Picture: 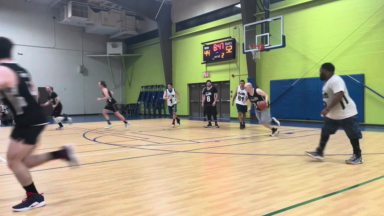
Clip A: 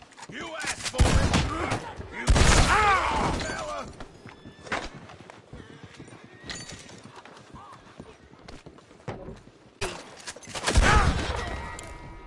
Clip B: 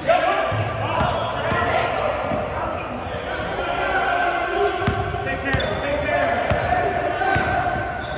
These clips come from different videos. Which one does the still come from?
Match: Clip B